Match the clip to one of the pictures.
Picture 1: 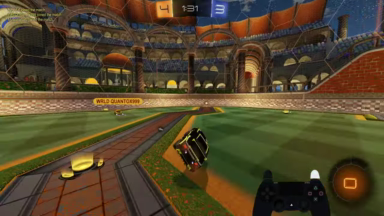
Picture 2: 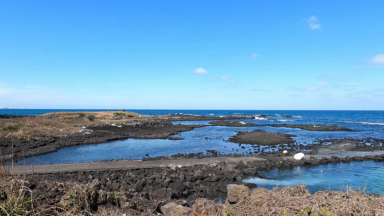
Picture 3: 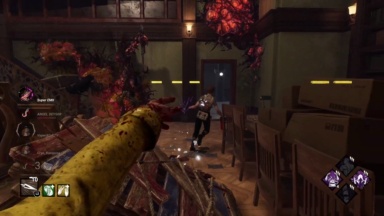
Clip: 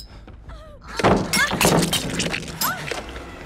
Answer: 3